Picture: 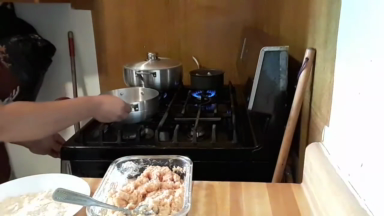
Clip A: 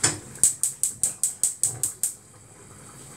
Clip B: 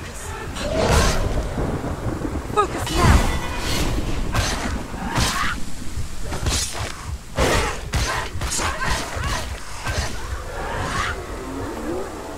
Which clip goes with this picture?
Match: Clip A